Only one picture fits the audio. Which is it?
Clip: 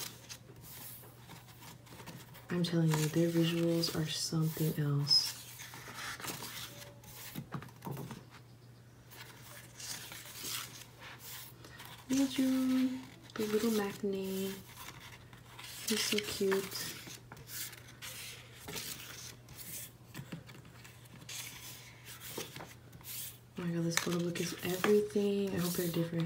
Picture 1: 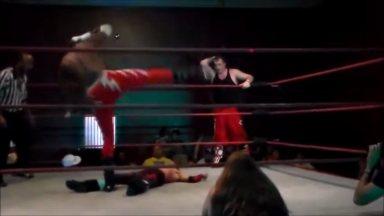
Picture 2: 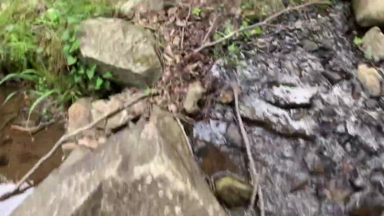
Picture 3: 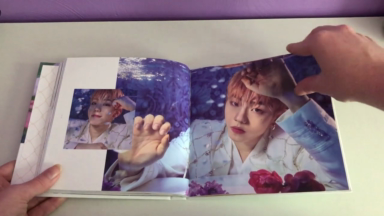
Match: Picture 3